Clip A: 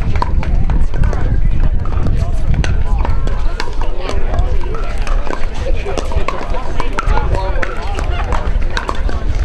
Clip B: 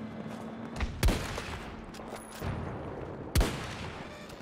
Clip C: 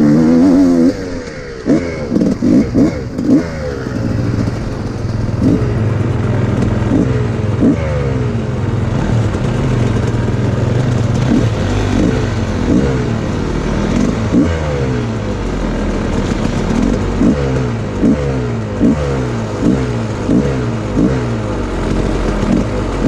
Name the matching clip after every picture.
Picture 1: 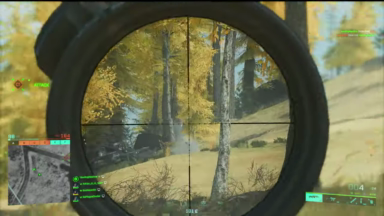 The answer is B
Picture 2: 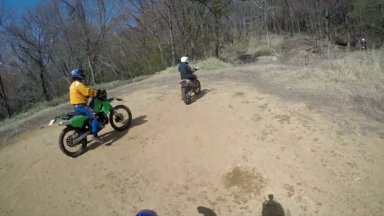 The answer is C